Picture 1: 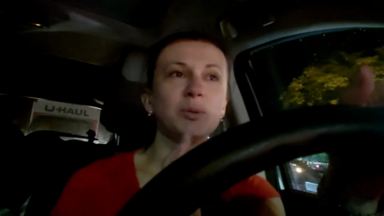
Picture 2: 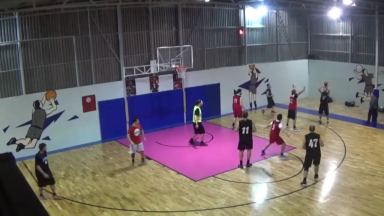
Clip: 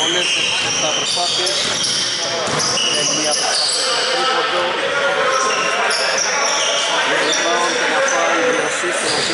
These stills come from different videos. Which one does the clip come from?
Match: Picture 2